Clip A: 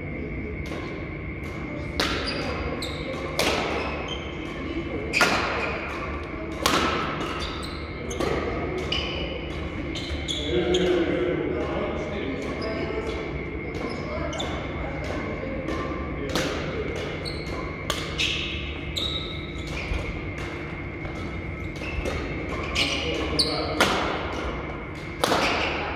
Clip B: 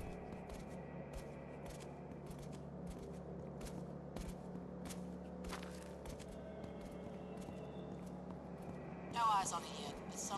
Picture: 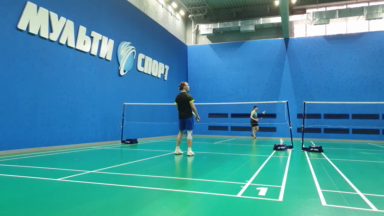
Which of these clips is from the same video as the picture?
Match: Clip A